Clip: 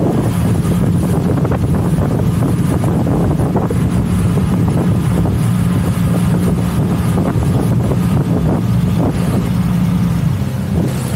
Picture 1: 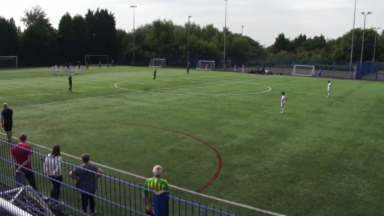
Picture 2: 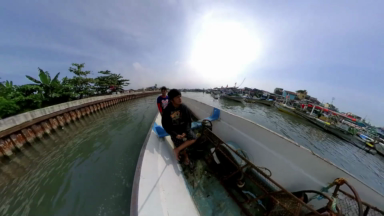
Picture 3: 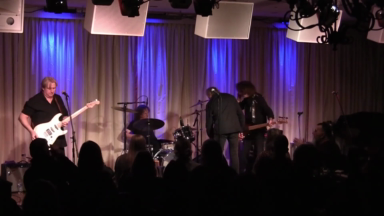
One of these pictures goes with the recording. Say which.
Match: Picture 2